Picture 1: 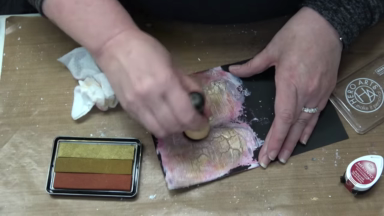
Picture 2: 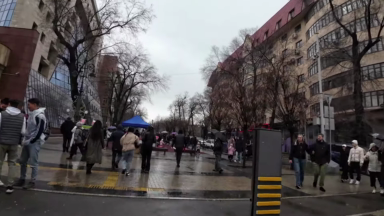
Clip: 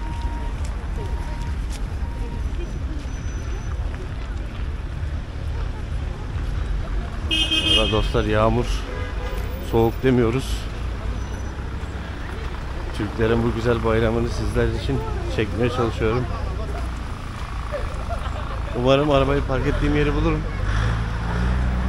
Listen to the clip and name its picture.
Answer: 2